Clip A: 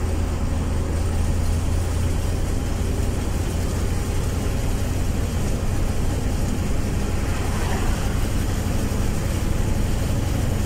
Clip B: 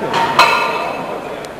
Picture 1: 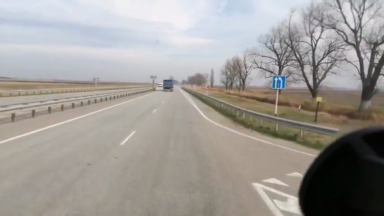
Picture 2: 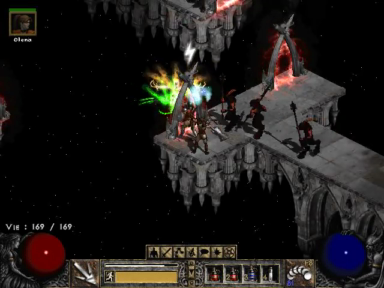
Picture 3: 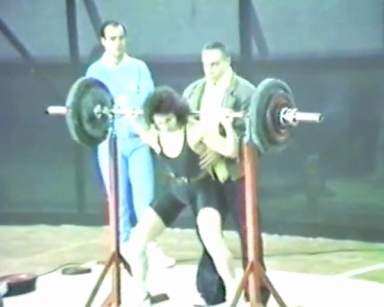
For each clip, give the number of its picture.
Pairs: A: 1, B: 3